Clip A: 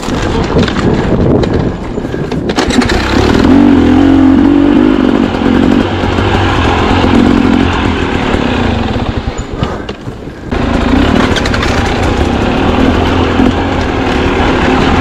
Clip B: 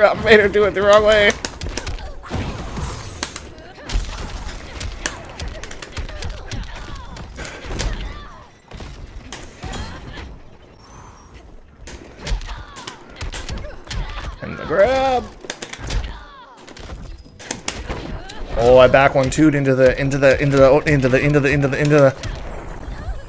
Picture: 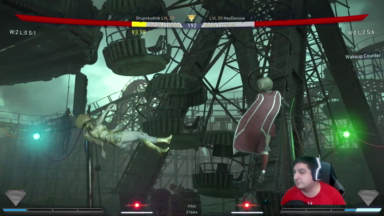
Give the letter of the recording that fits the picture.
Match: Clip B